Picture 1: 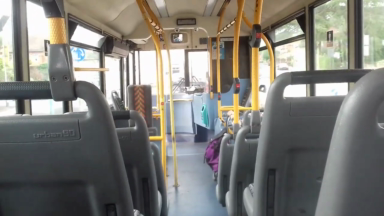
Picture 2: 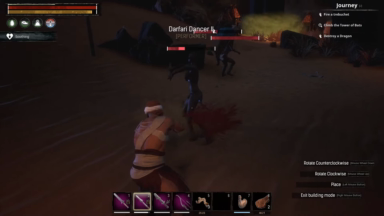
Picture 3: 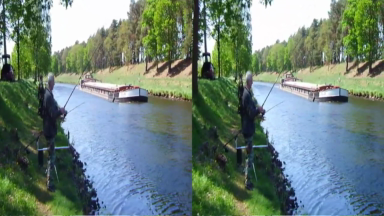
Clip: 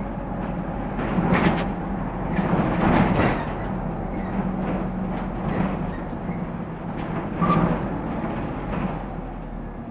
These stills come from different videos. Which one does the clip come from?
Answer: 1